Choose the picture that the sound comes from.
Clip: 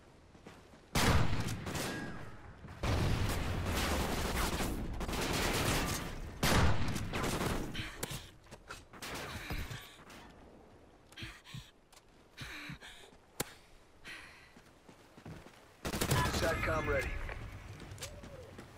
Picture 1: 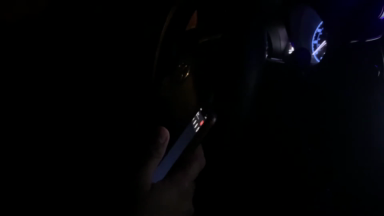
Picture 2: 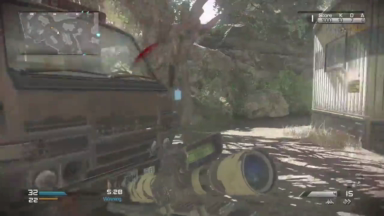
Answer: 2